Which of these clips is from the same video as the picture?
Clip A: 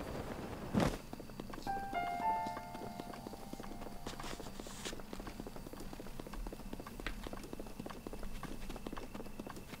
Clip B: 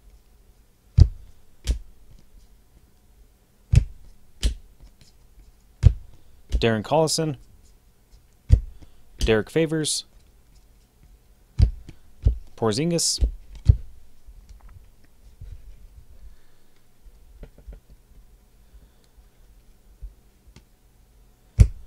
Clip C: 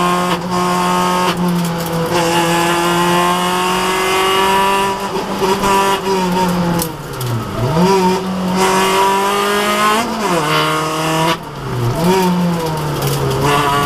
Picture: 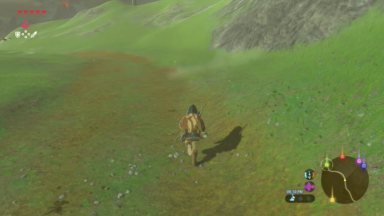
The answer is A